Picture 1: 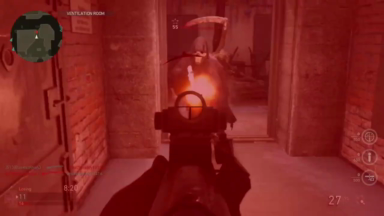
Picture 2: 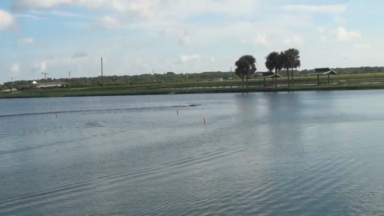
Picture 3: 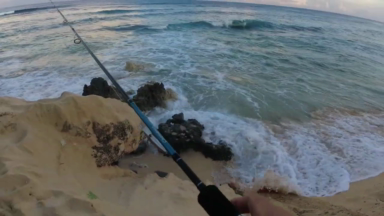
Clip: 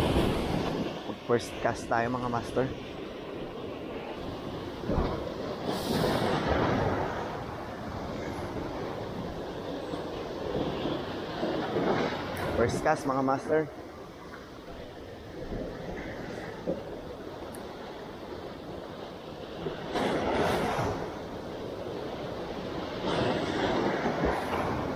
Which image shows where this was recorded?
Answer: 3